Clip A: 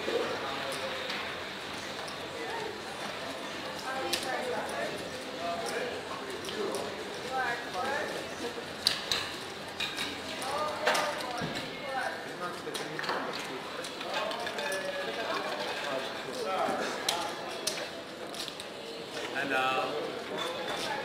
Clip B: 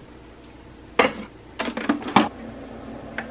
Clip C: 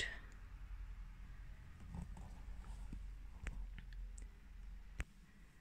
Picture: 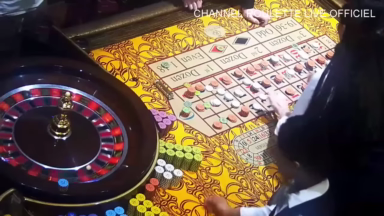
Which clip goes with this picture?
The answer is A